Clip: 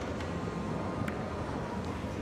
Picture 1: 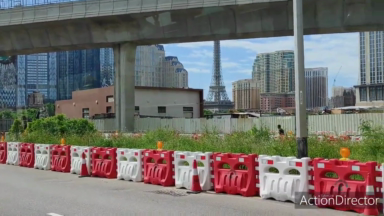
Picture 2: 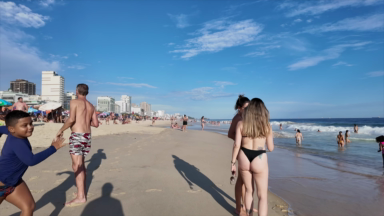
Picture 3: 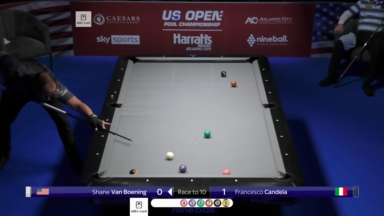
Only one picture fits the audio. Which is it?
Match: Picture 3